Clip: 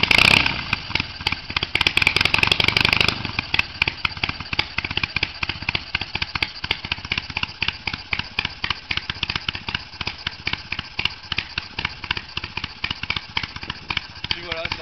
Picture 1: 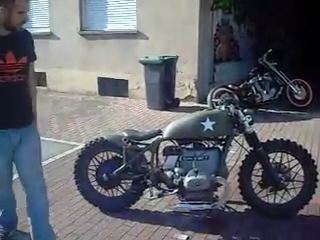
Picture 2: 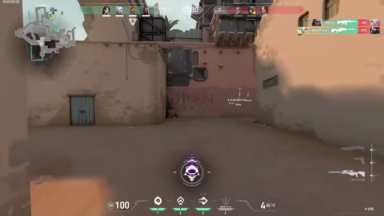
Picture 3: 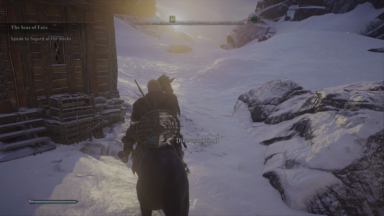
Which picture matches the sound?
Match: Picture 1